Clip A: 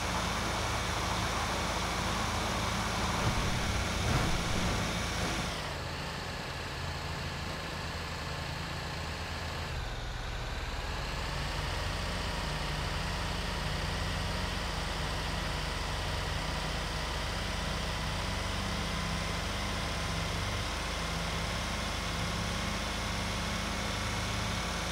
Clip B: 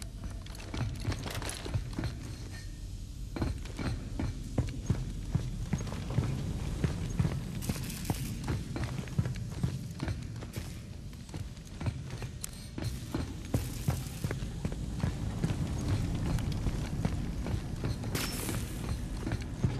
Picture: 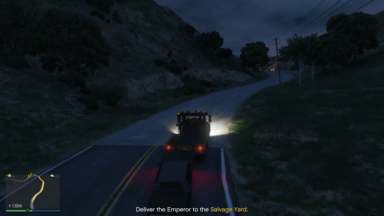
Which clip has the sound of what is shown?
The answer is A